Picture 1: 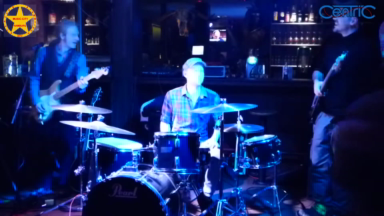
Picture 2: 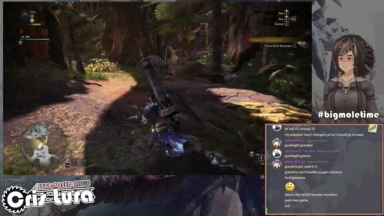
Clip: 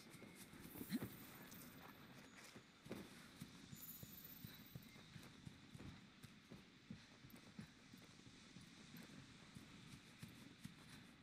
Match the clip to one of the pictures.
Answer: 2